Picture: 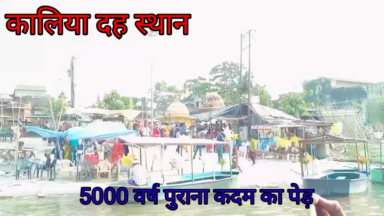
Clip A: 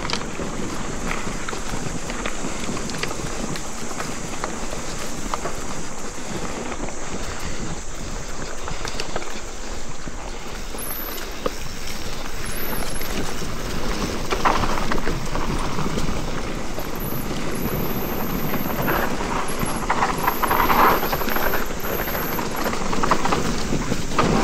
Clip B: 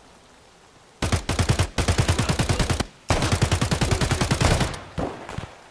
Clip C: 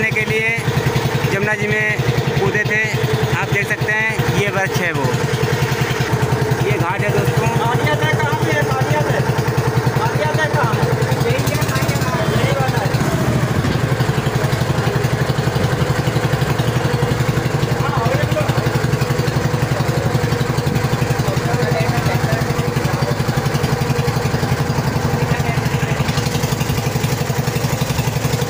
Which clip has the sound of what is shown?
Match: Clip C